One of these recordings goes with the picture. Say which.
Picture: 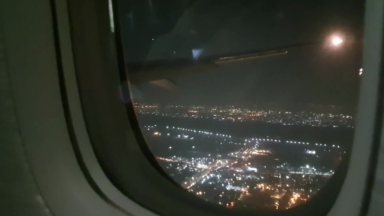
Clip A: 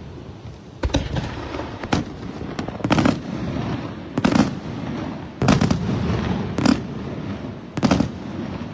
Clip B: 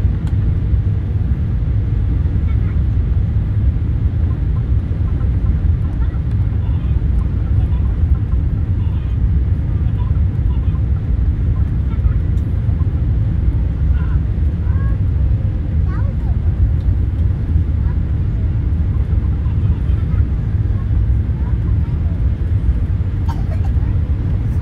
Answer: B